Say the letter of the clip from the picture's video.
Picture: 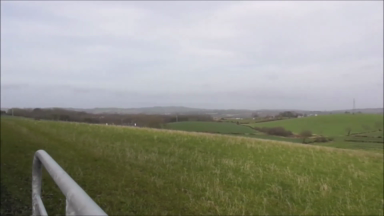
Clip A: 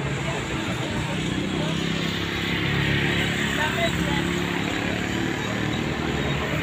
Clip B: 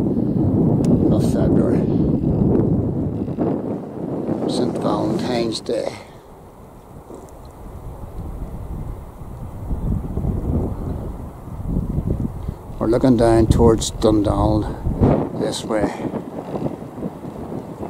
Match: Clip B